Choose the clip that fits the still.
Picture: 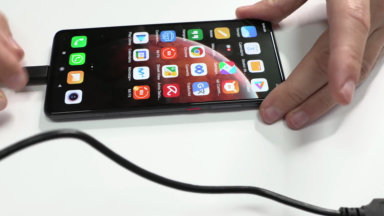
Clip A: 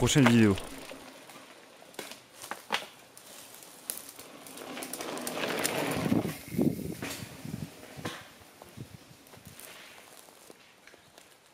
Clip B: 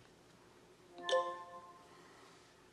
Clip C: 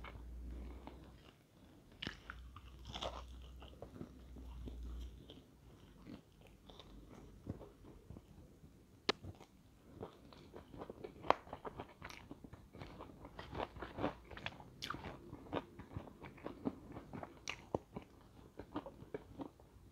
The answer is B